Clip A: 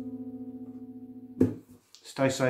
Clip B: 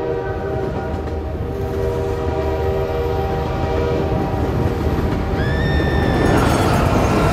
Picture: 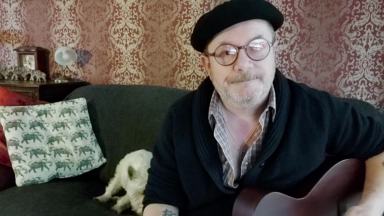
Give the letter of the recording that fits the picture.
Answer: A